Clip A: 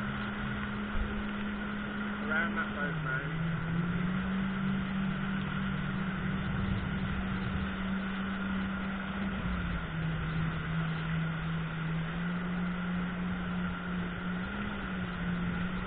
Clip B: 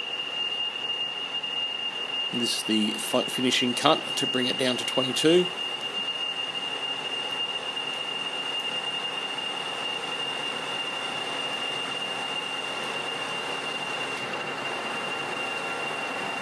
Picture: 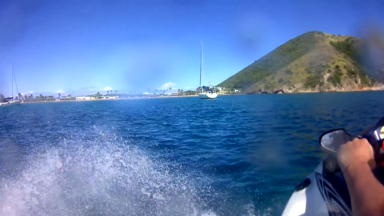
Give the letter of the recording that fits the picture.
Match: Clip A